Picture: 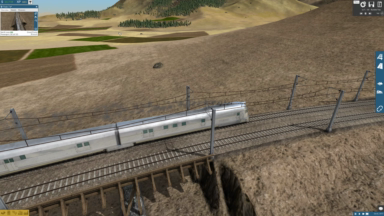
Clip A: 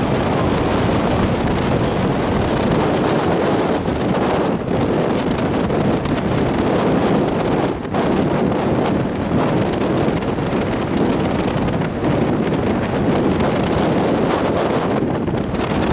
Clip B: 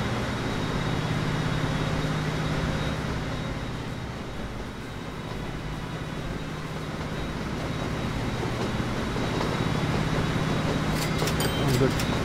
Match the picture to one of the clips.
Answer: B